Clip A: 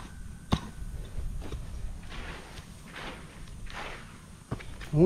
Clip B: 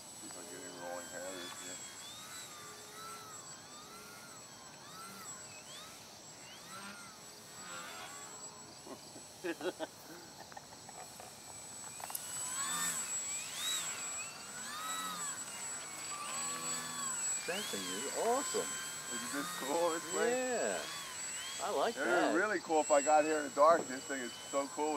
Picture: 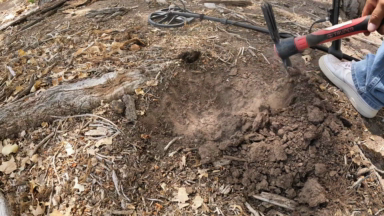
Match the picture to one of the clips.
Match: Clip A